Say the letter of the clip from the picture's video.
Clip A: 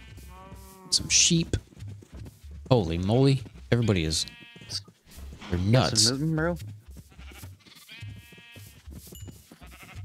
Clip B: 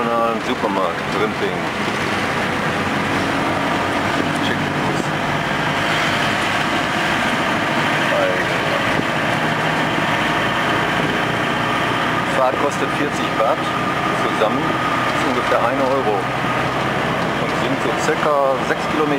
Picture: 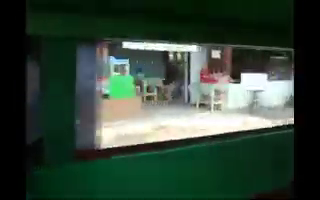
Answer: B